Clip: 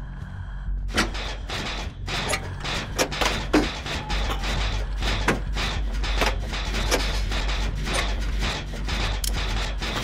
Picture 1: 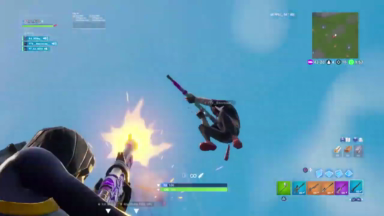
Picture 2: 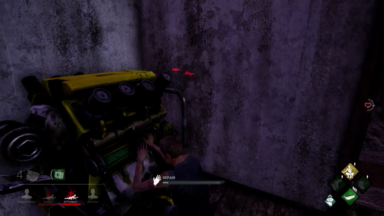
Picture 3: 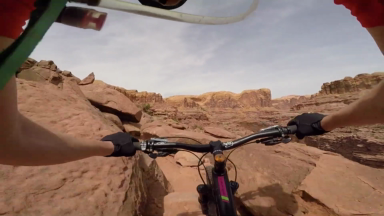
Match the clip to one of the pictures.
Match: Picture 2